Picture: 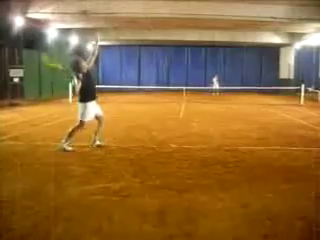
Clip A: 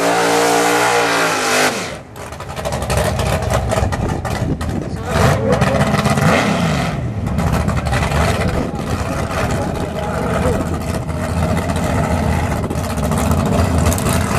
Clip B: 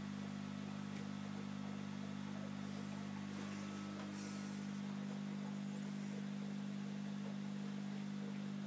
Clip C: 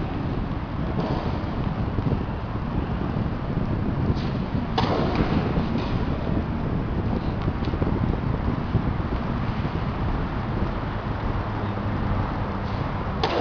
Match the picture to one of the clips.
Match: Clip C